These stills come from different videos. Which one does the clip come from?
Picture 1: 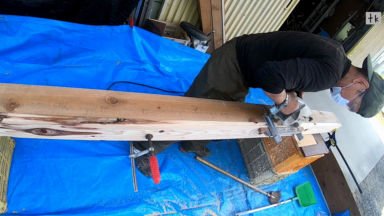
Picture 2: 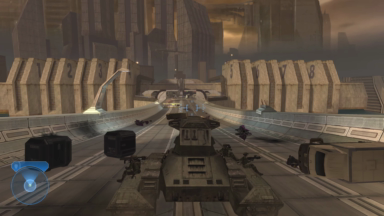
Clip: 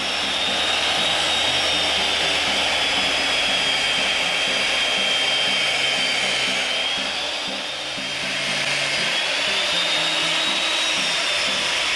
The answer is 1